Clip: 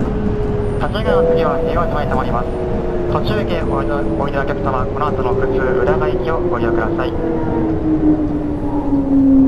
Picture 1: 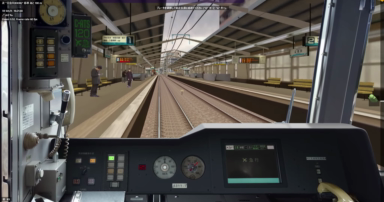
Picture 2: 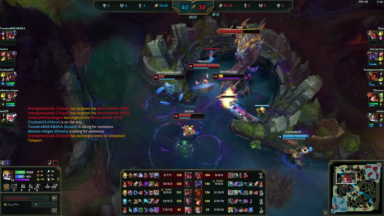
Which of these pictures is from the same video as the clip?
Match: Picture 1